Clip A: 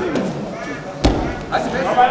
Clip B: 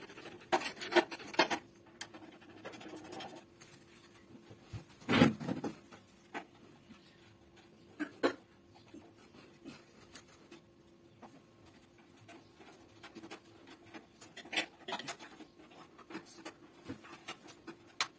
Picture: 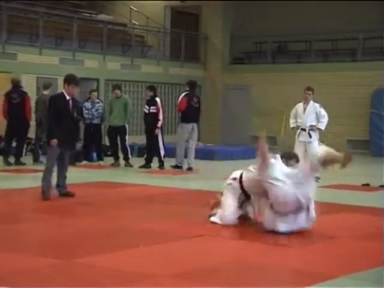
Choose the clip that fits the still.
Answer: A